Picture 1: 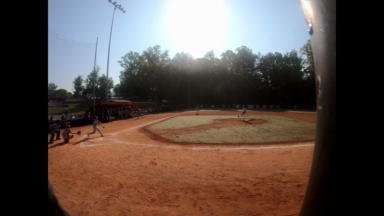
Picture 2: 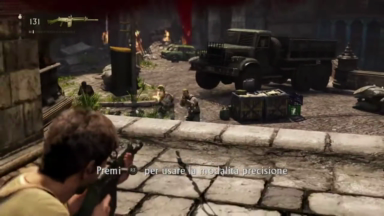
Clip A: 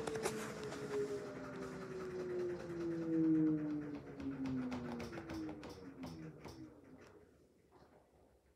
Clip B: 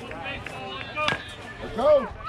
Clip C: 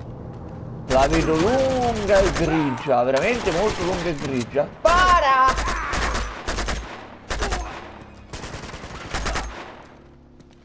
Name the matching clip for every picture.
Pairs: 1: B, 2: C